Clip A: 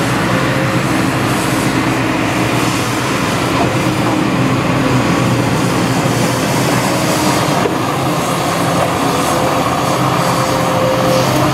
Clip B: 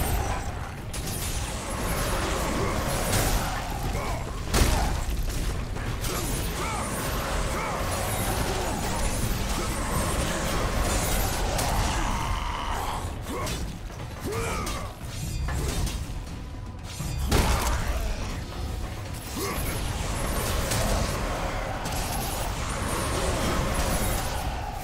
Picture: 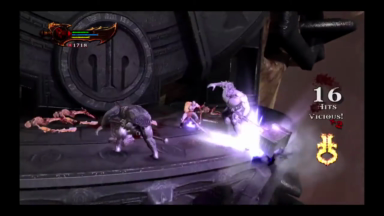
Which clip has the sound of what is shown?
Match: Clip B